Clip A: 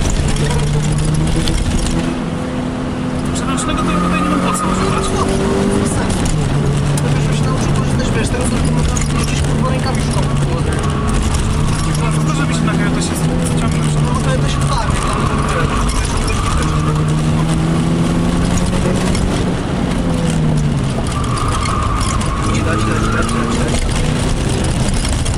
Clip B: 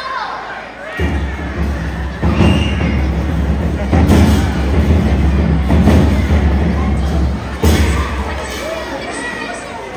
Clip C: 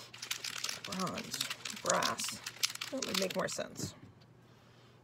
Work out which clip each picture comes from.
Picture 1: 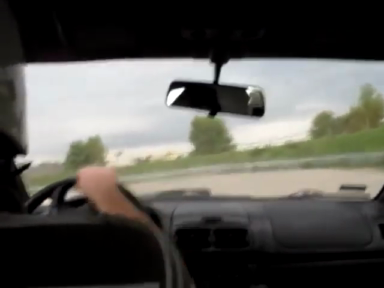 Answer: A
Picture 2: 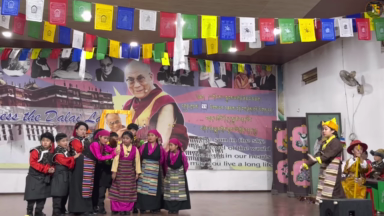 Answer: B